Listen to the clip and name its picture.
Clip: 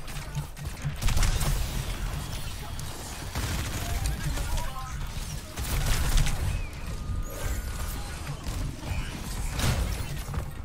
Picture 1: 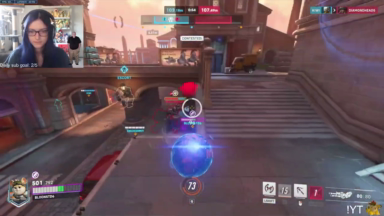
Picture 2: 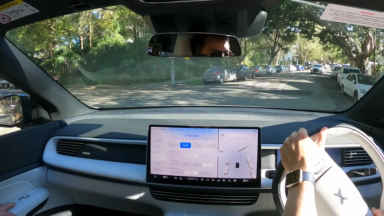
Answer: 1